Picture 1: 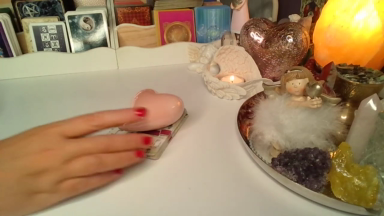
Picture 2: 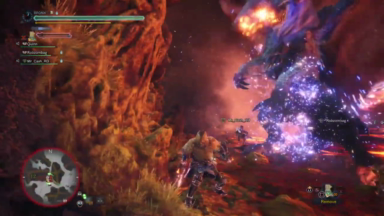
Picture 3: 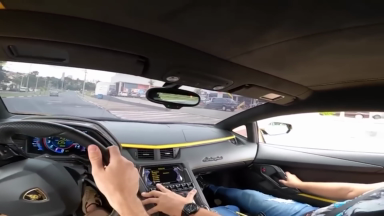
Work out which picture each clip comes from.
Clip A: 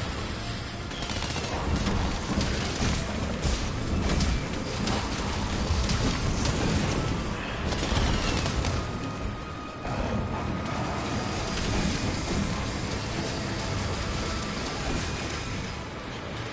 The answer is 2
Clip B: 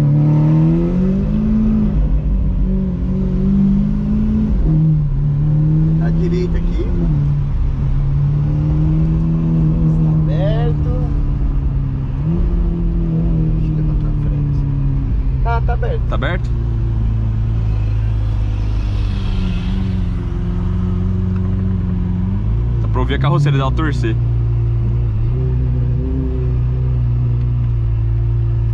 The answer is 3